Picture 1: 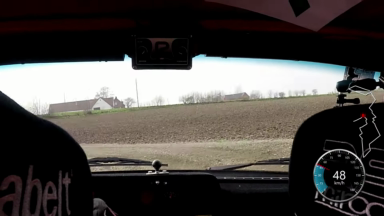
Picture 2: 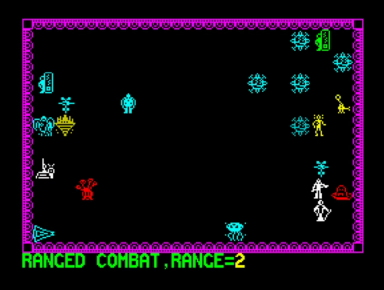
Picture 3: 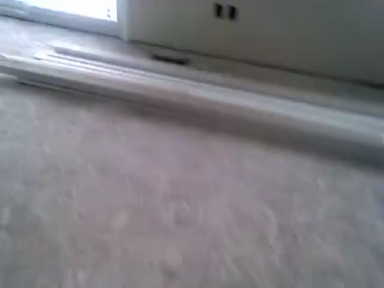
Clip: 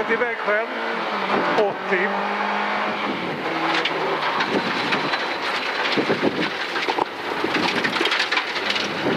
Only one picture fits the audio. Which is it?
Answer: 1